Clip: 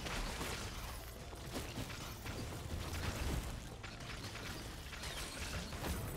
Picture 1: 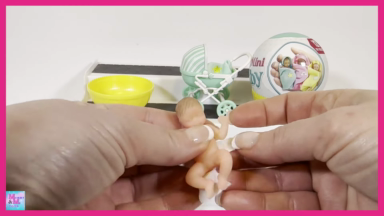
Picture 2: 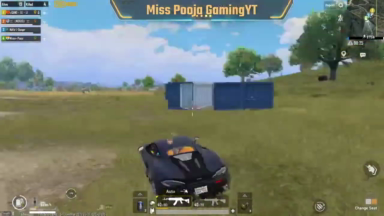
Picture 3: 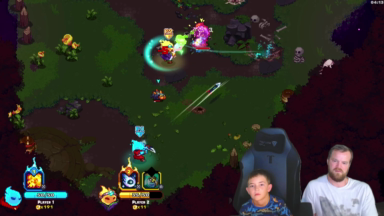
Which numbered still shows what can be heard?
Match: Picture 3